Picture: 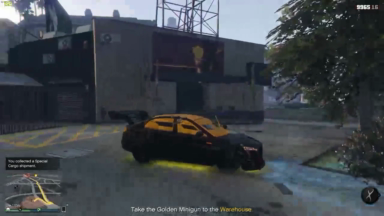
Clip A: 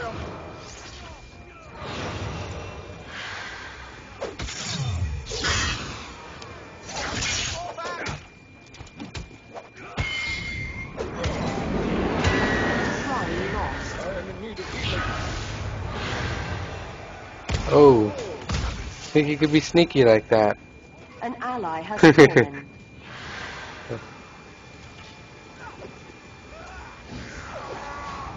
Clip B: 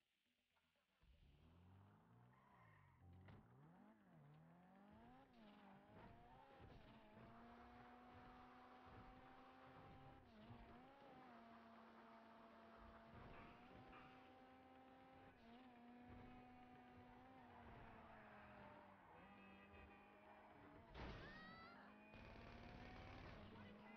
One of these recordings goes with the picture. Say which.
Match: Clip B